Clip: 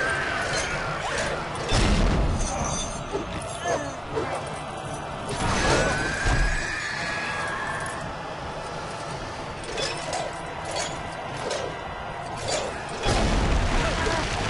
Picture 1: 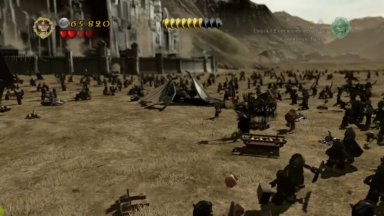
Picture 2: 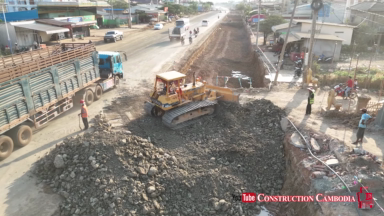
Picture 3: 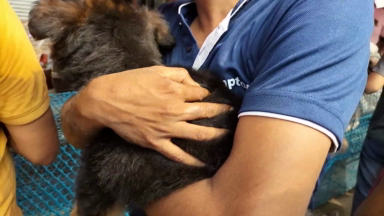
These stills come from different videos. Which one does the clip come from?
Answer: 1